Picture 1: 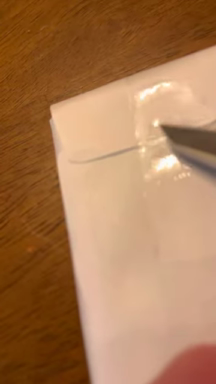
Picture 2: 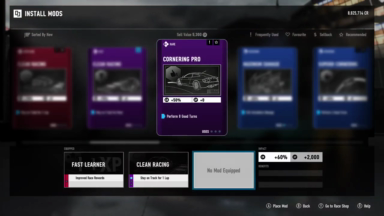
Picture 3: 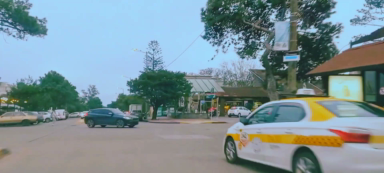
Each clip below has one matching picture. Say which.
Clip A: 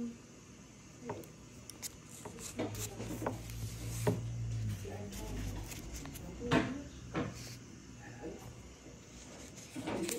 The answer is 1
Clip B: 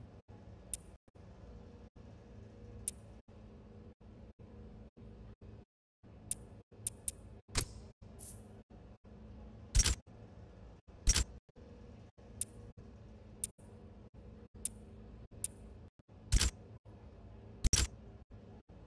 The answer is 2